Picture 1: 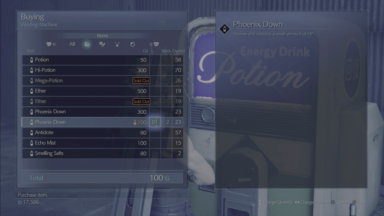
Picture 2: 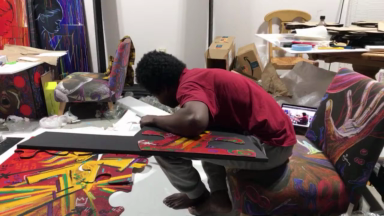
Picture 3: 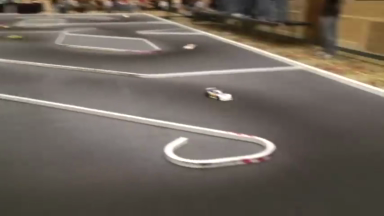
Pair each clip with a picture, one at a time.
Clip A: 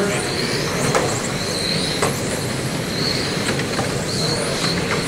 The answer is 3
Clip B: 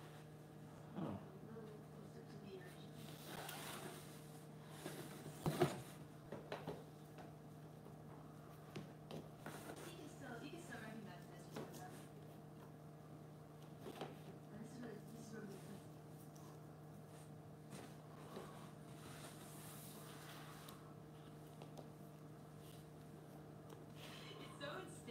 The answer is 2